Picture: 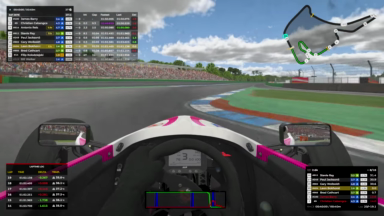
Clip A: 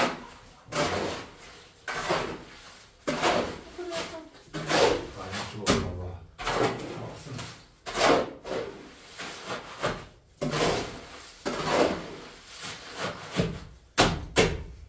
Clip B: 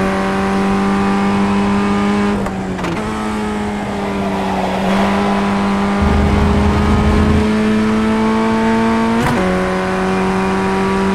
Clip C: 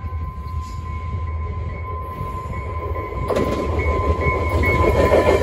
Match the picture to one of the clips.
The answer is B